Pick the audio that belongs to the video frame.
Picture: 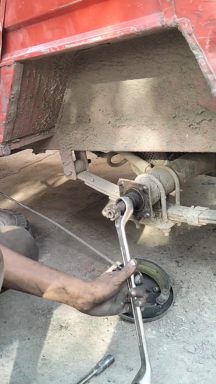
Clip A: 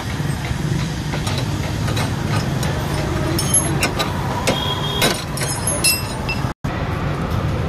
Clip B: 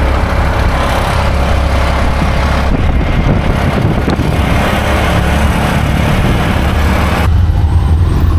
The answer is A